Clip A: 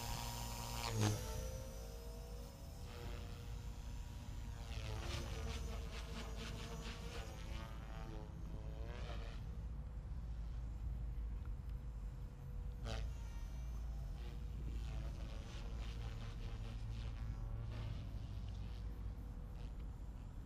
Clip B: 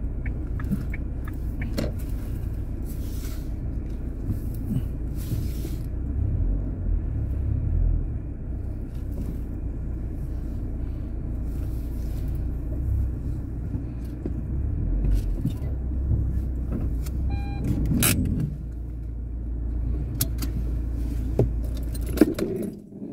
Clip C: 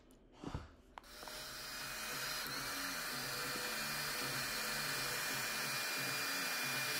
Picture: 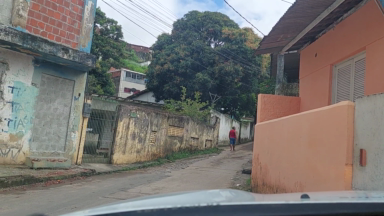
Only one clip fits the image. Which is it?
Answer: B